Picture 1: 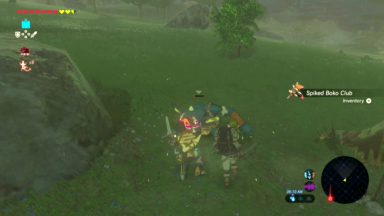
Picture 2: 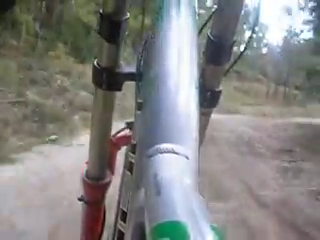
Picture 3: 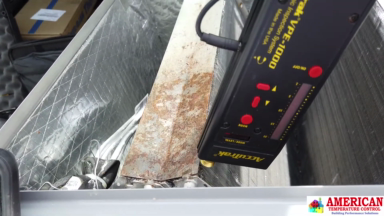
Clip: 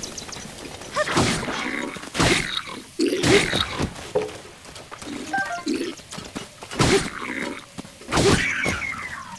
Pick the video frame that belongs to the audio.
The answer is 1